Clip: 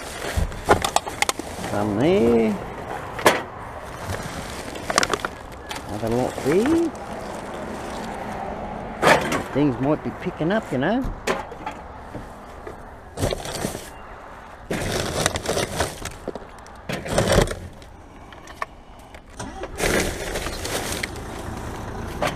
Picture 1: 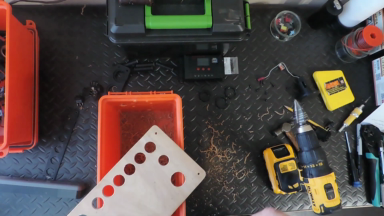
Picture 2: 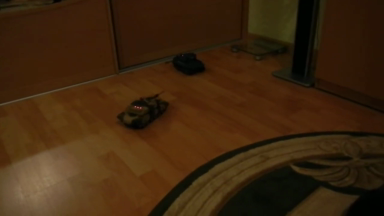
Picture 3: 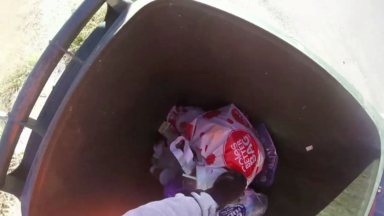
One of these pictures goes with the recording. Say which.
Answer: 3